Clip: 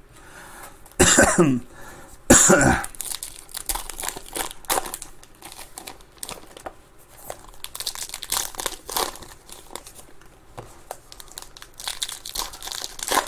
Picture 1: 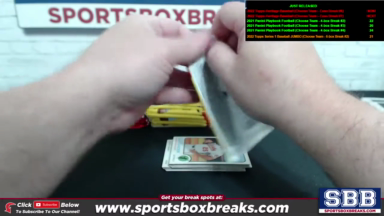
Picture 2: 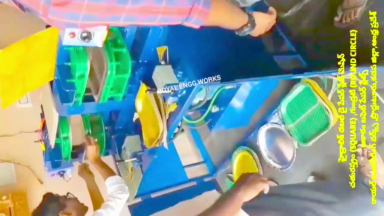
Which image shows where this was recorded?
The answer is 1